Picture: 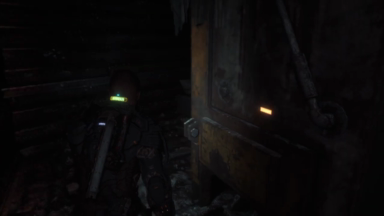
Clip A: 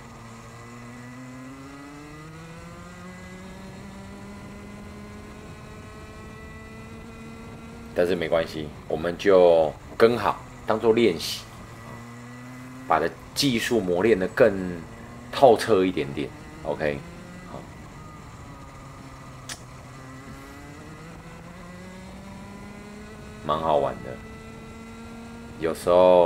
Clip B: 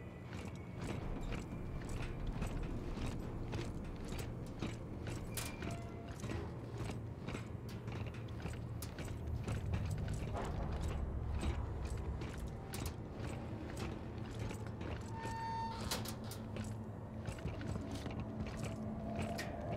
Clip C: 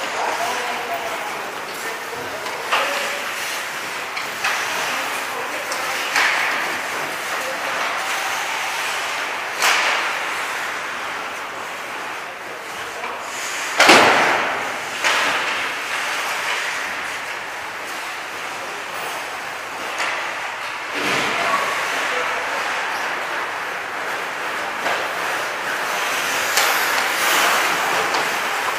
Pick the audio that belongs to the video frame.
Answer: B